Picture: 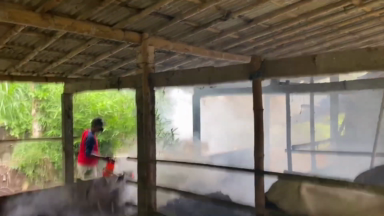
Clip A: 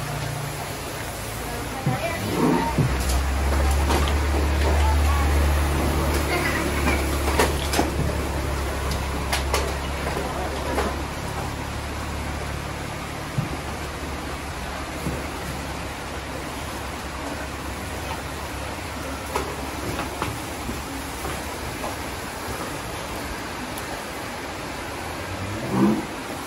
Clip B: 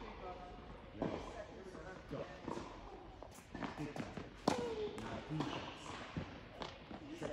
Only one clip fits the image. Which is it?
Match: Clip A